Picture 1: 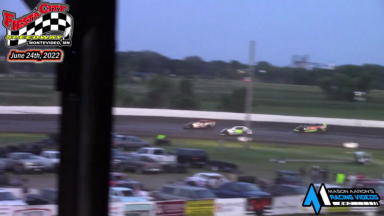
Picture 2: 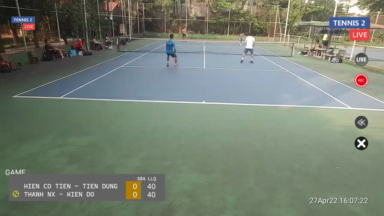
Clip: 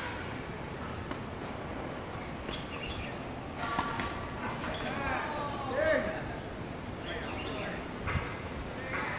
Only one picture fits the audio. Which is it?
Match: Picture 2